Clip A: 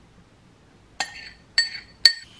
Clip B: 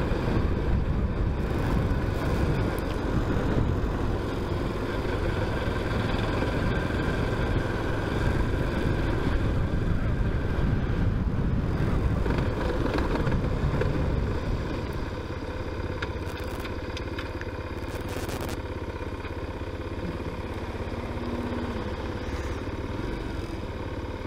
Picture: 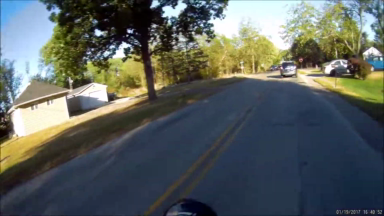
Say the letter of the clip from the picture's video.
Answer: B